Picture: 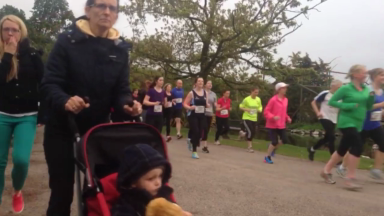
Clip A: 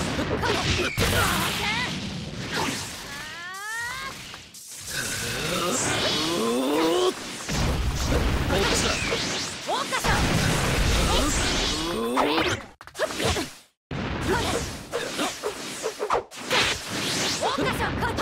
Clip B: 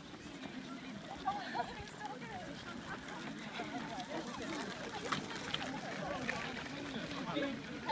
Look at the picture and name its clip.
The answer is B